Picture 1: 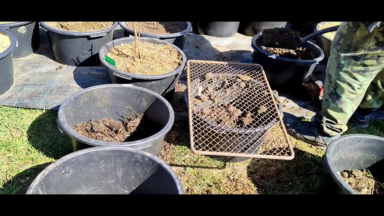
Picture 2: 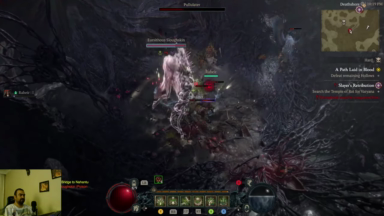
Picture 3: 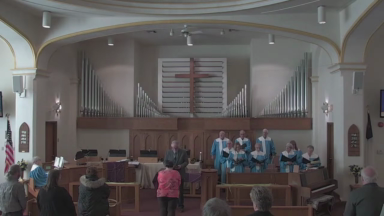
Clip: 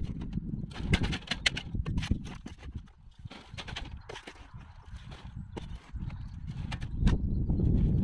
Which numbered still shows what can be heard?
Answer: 1